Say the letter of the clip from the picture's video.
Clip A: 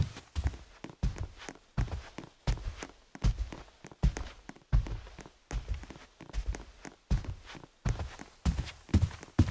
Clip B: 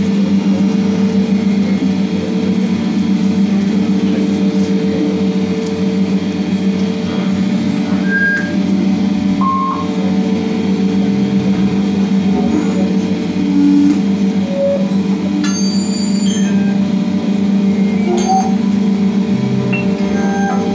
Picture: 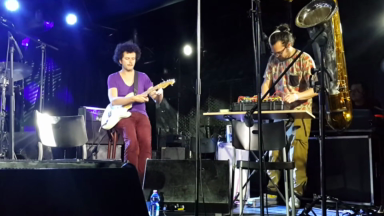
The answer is B